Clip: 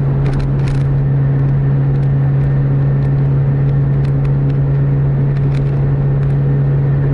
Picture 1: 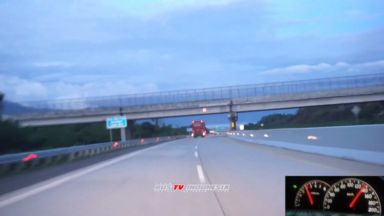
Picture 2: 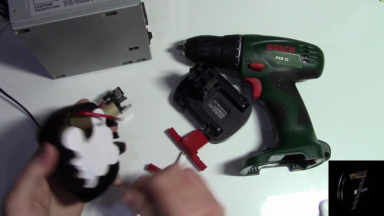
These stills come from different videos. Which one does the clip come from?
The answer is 1